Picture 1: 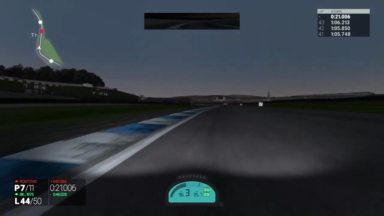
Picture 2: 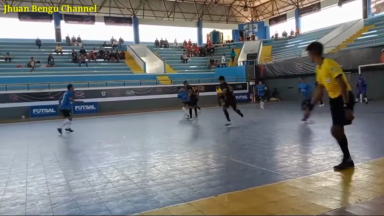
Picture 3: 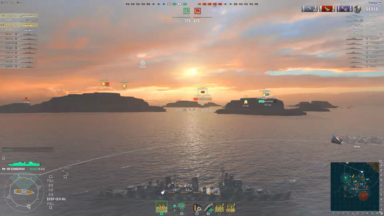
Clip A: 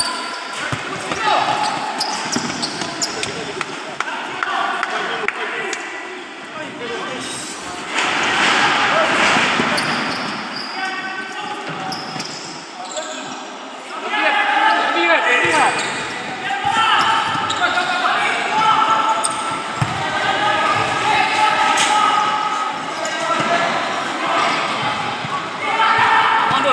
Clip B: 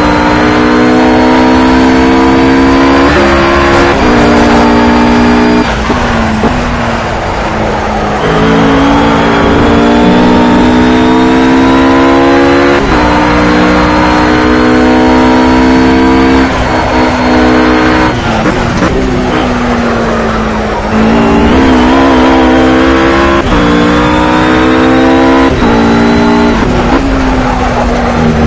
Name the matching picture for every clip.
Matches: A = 2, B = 1